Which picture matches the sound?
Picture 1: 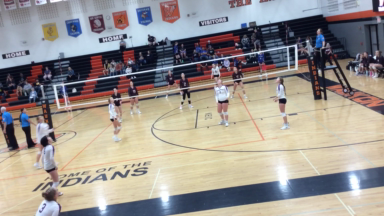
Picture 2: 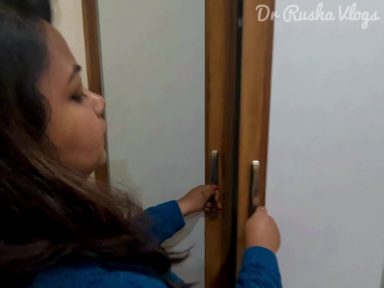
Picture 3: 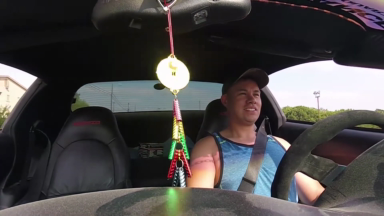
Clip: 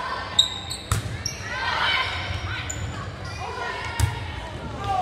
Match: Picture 1